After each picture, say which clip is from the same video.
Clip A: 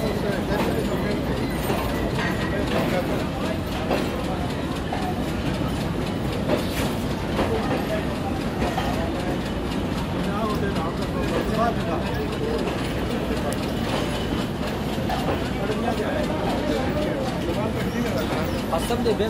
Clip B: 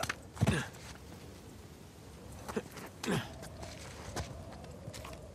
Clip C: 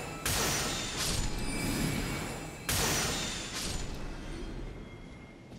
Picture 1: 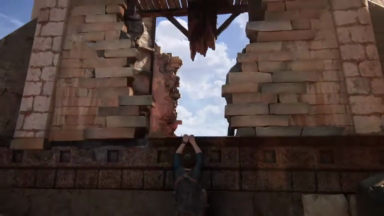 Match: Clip B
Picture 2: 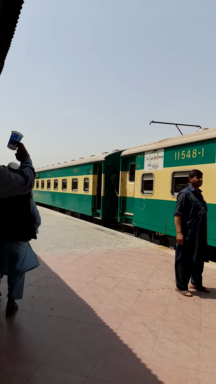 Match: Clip A